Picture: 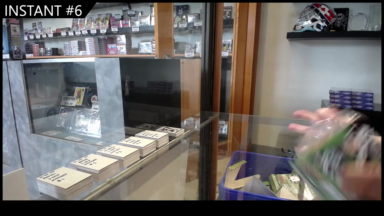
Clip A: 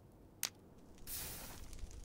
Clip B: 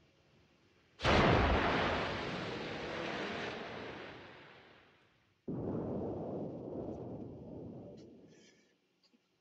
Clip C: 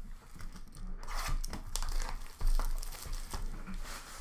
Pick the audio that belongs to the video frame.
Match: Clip C